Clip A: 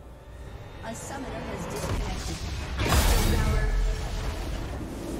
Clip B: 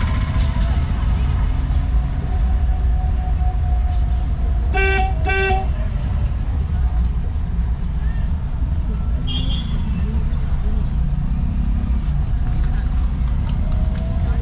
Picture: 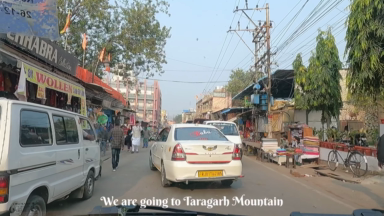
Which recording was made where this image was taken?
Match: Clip B